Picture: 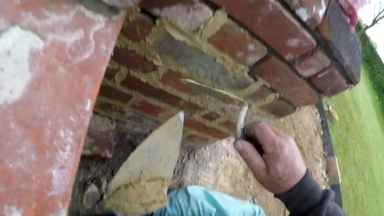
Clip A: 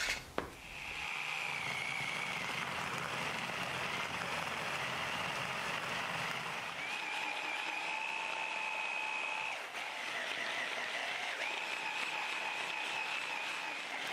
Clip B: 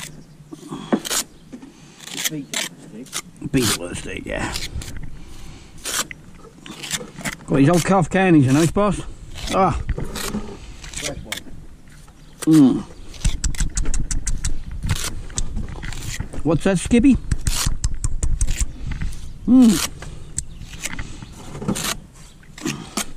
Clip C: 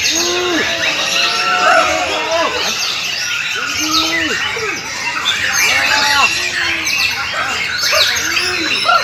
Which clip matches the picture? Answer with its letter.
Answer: B